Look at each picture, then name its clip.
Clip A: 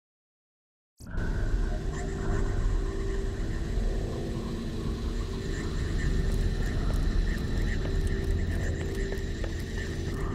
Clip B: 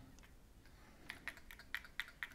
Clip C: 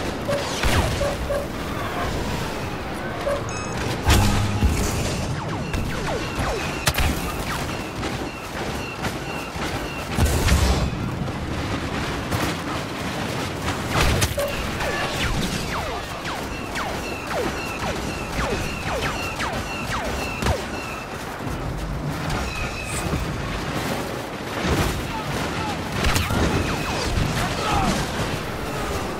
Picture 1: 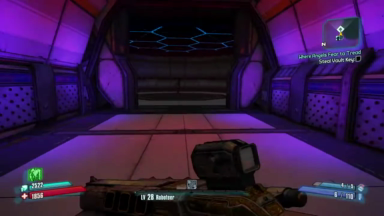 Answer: A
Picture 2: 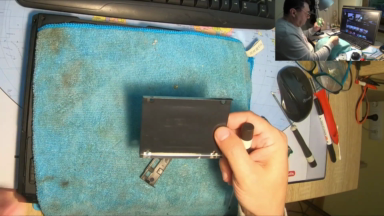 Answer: B